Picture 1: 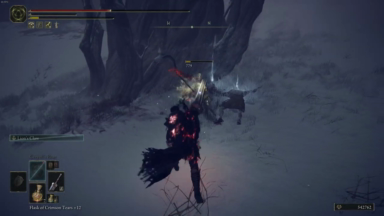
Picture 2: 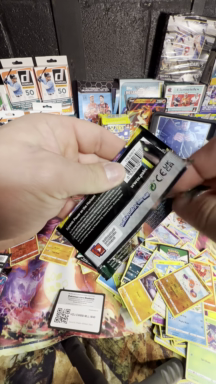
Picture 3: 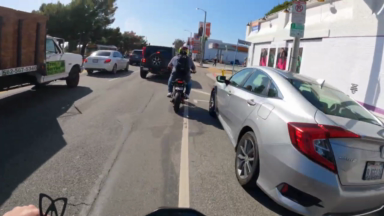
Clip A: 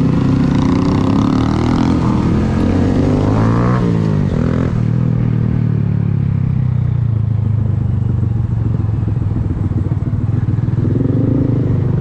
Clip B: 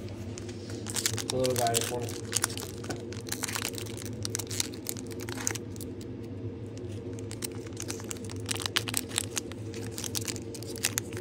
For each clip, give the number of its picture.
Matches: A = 3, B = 2